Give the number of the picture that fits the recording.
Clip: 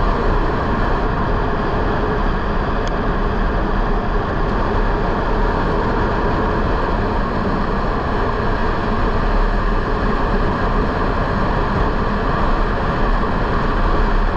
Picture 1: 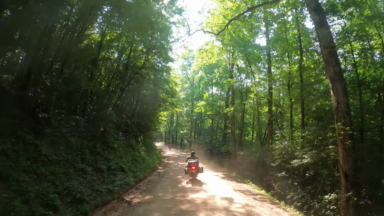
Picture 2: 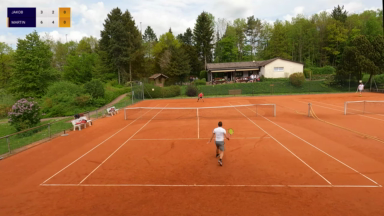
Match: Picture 1